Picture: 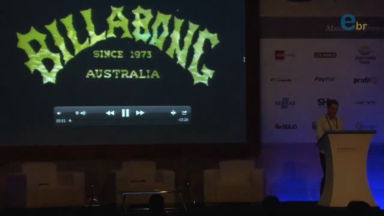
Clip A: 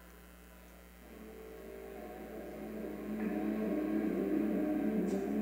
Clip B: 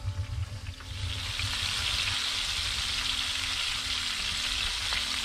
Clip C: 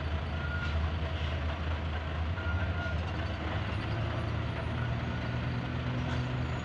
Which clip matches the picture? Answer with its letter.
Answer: A